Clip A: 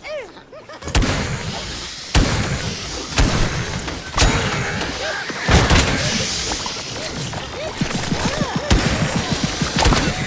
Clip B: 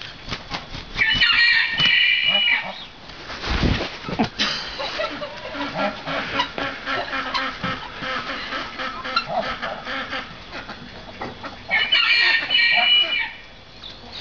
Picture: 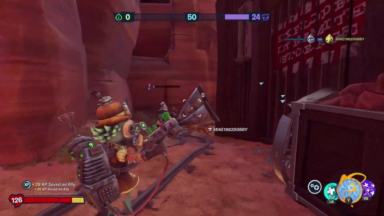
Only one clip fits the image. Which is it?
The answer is A